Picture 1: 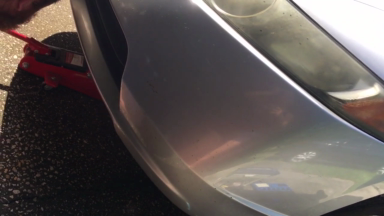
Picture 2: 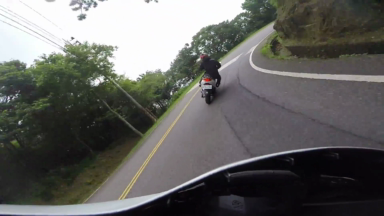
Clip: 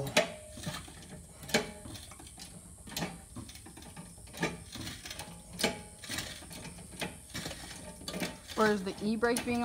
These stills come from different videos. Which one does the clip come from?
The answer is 1